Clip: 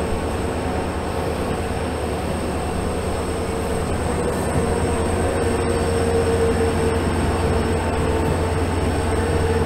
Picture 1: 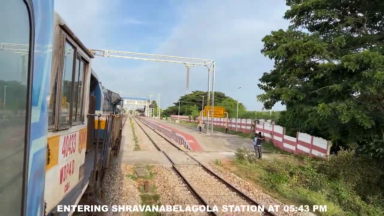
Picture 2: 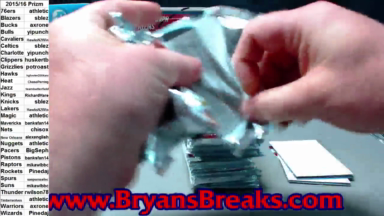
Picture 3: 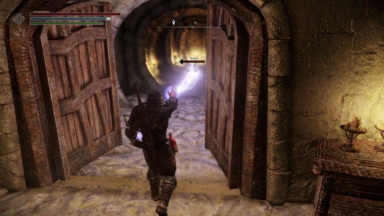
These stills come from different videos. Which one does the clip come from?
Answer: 1